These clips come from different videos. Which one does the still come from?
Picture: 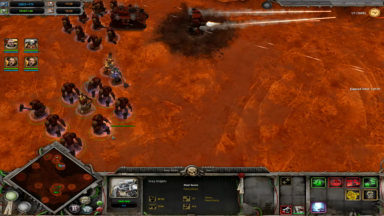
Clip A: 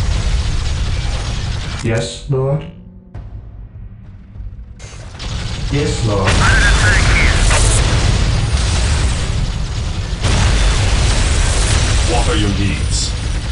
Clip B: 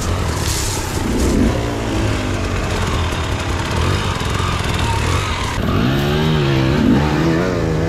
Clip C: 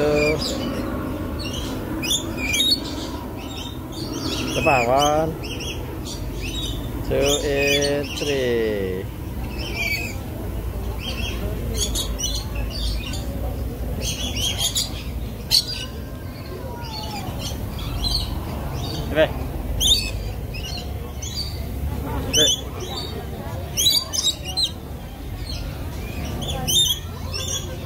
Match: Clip A